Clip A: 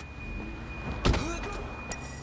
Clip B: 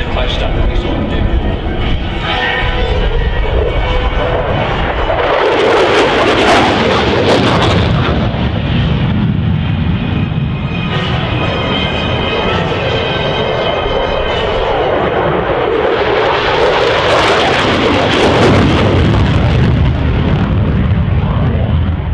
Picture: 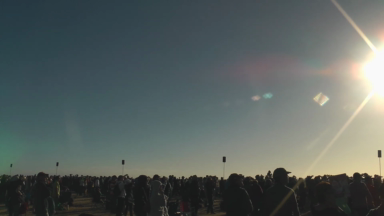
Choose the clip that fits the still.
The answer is B